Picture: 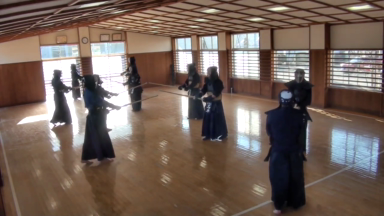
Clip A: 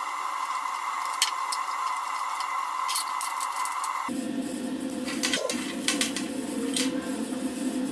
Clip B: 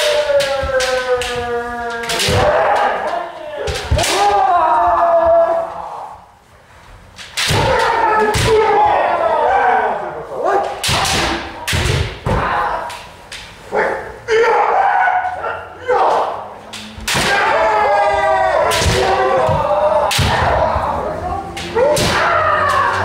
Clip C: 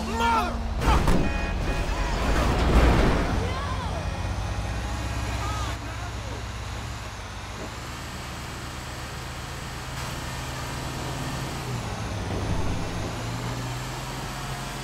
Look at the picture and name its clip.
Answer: B